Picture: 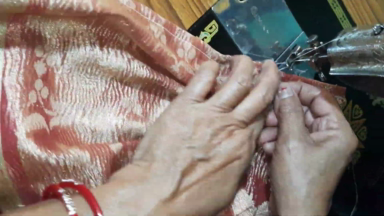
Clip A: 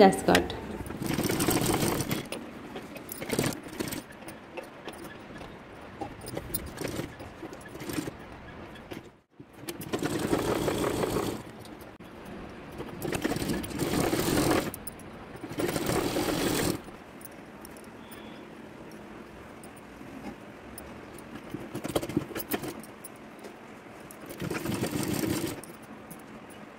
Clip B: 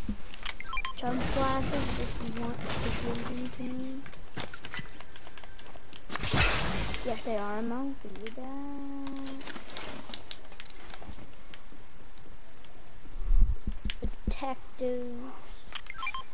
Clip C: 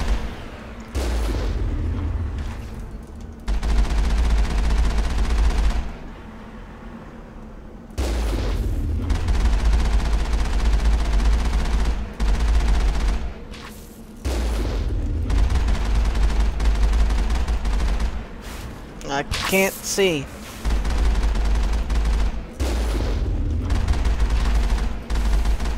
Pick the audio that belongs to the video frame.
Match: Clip A